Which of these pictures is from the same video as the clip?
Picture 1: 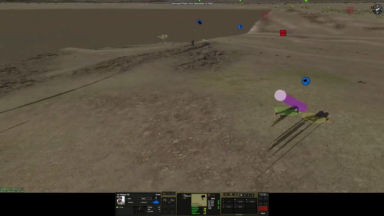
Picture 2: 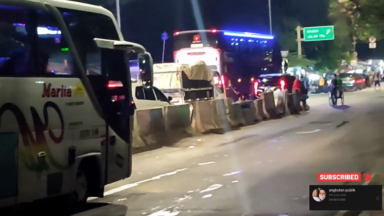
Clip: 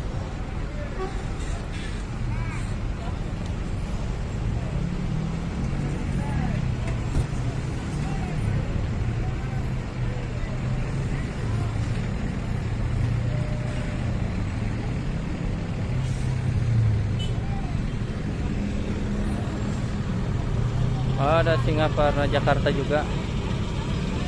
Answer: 2